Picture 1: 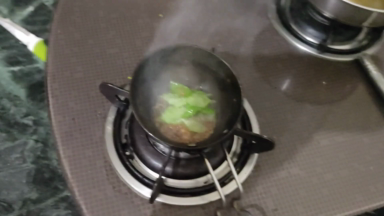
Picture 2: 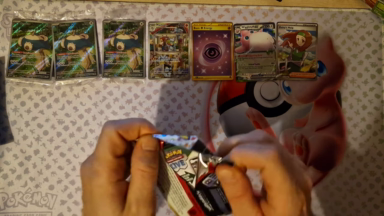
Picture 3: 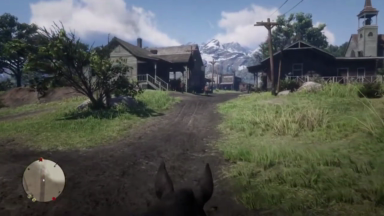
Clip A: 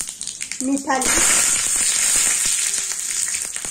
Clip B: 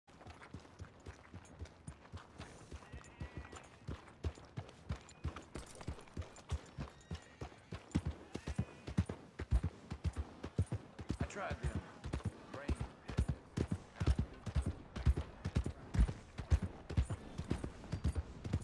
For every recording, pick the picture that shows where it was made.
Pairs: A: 1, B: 3